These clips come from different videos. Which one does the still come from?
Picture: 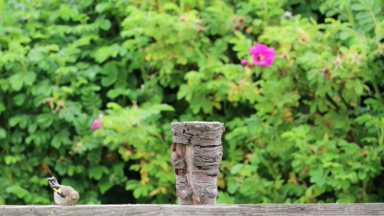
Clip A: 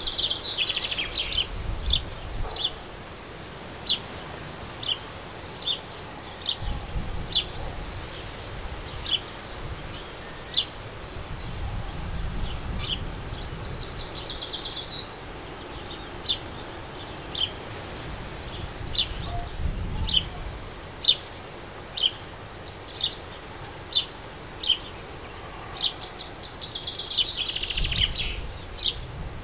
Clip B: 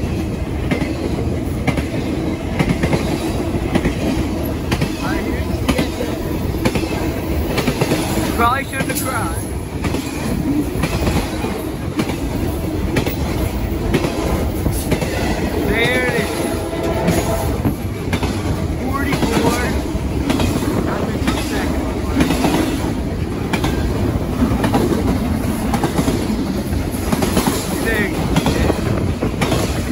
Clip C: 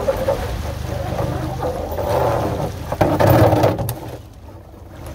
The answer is A